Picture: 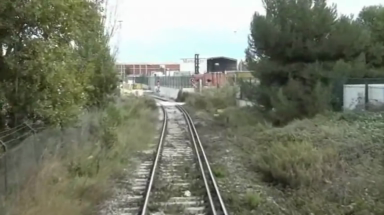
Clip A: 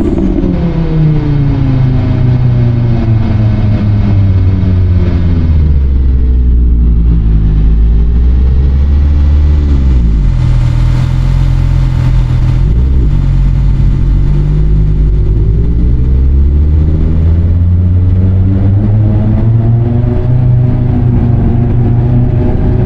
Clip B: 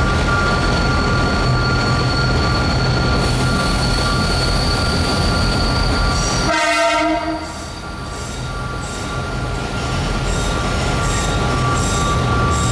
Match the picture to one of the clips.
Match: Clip B